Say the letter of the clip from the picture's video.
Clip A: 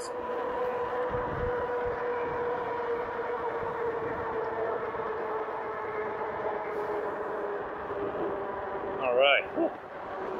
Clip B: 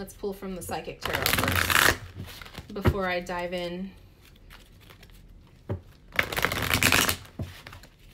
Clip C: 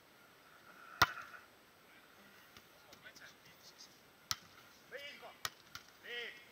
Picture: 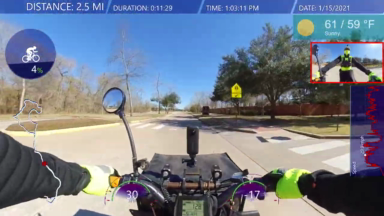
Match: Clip A